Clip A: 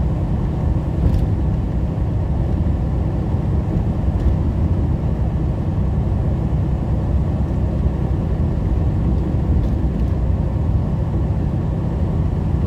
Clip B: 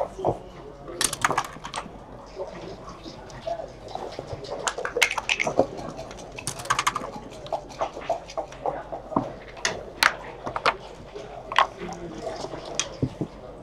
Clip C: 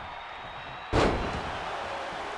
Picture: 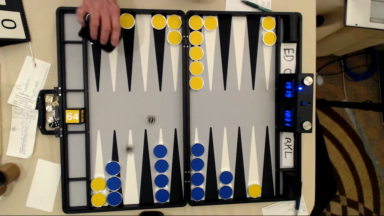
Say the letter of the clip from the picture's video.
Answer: B